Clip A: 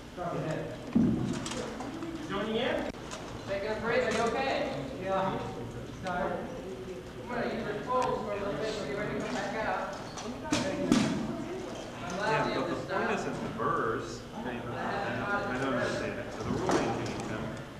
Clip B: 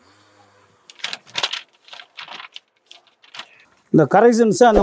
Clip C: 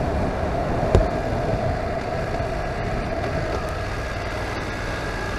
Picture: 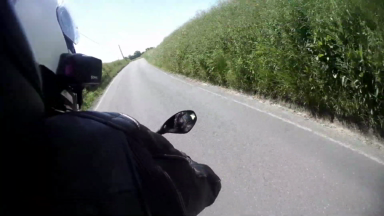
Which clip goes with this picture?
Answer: C